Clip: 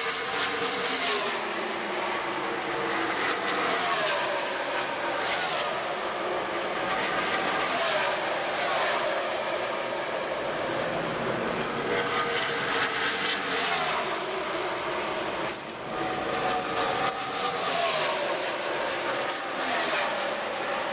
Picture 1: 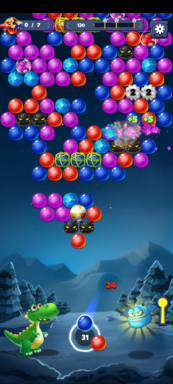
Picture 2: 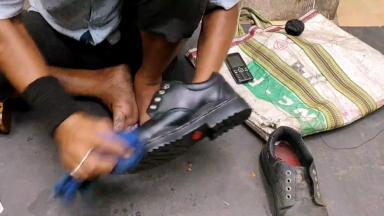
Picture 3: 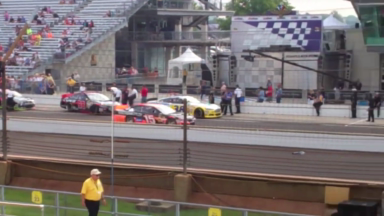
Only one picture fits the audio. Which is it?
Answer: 3